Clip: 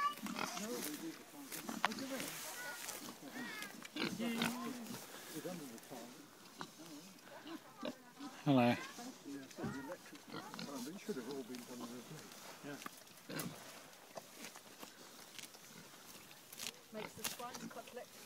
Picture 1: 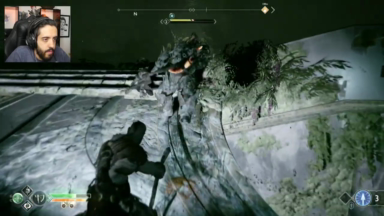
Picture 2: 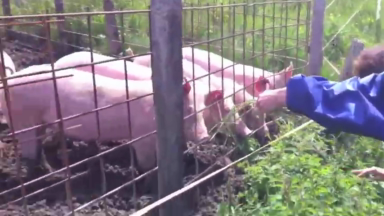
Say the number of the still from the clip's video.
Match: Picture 2